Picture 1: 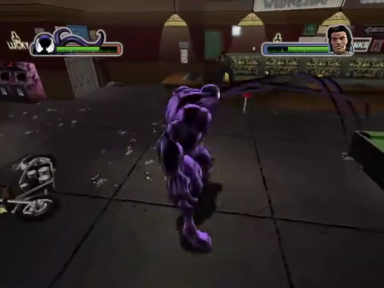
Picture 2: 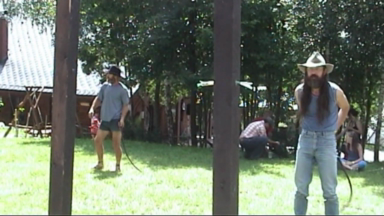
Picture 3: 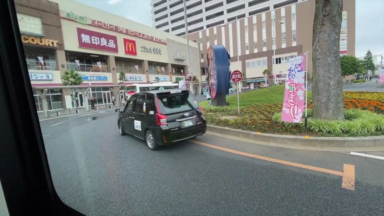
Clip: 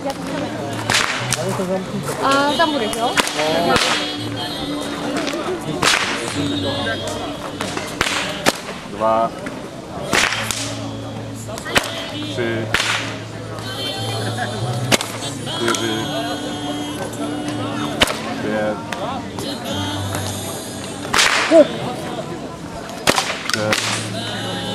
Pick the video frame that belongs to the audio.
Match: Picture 2